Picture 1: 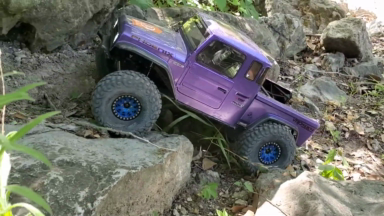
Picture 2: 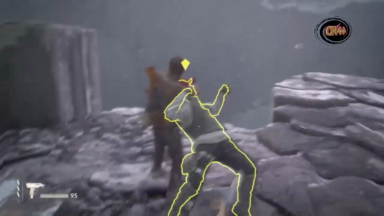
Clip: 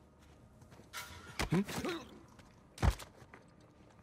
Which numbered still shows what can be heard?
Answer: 2